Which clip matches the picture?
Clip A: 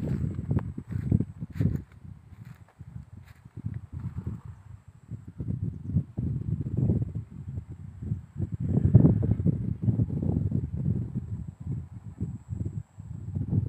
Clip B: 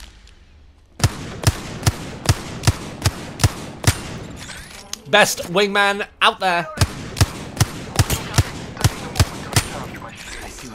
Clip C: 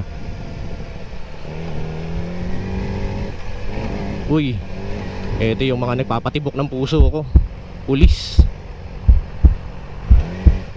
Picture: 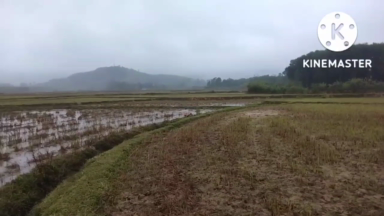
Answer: A